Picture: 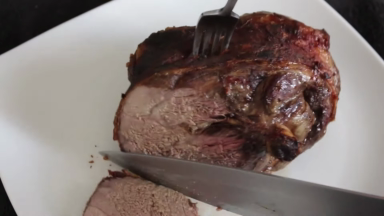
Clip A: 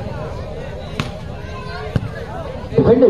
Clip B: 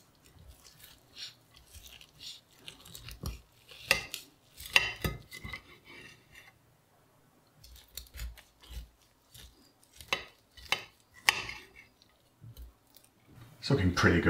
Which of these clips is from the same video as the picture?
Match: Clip B